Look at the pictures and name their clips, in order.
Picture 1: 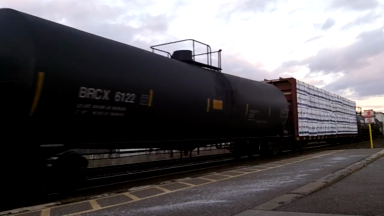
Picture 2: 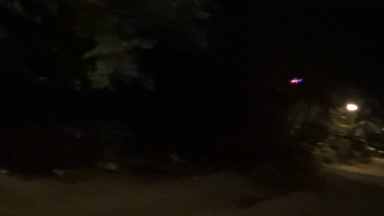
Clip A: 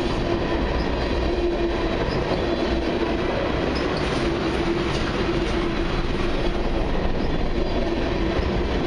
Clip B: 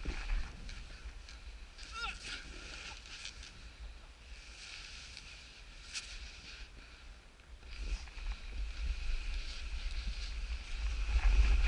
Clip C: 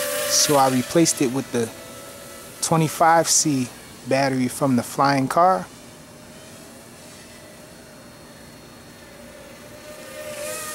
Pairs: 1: A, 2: C